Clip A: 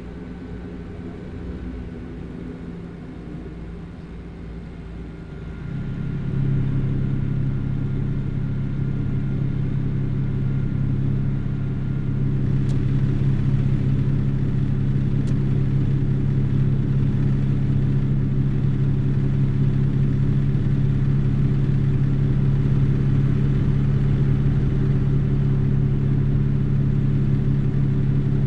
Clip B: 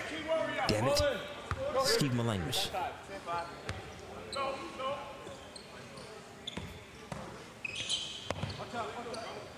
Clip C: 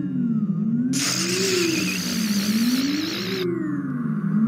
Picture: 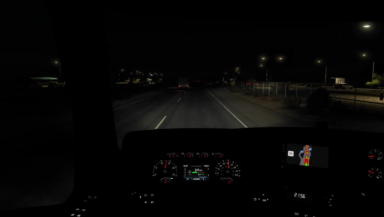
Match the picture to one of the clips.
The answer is A